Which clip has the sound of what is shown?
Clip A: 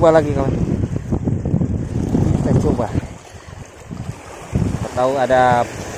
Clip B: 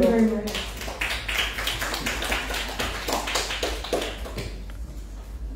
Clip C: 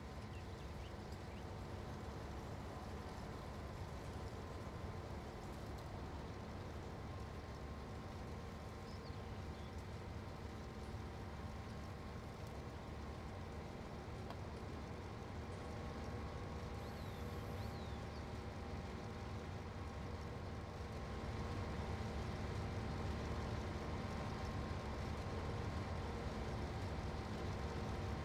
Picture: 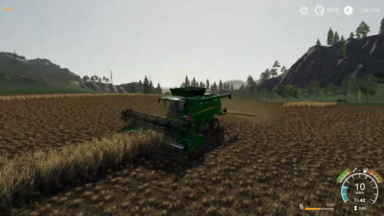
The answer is C